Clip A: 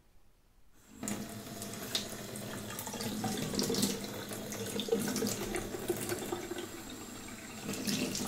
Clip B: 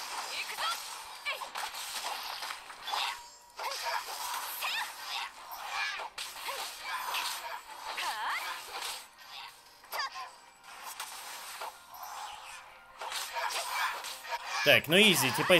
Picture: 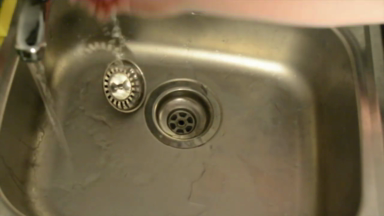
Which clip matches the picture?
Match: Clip A